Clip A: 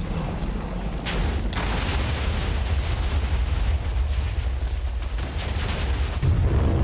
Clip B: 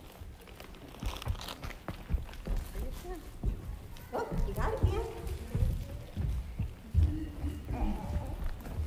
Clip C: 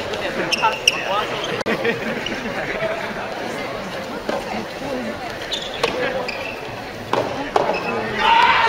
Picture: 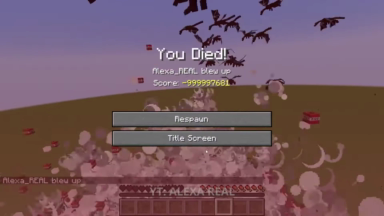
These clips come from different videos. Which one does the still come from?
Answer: A